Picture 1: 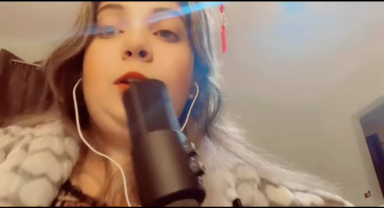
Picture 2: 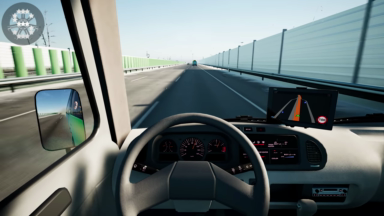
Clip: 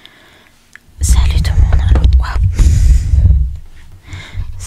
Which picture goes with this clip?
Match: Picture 1